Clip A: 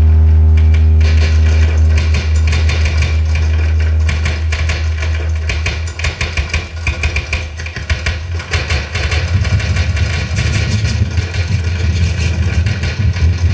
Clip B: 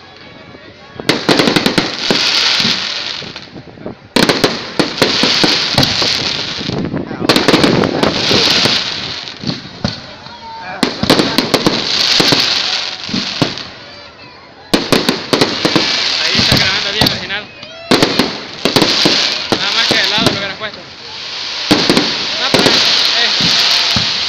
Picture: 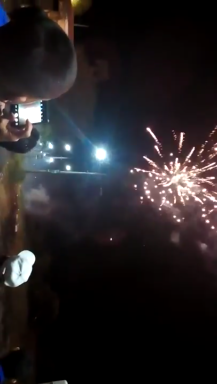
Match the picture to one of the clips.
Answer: B